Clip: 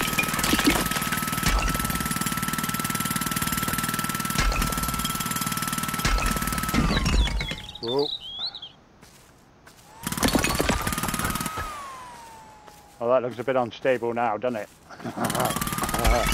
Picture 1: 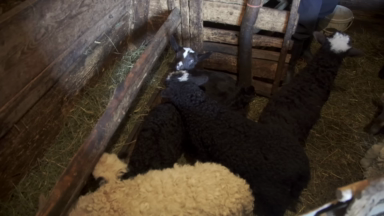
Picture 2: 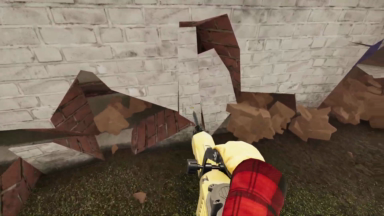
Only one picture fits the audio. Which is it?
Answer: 2